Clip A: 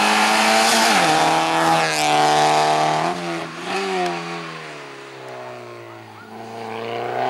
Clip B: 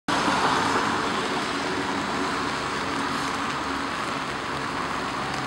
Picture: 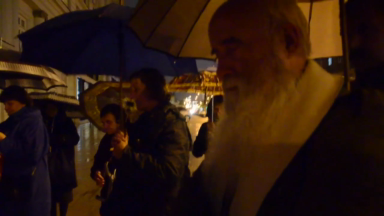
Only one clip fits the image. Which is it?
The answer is B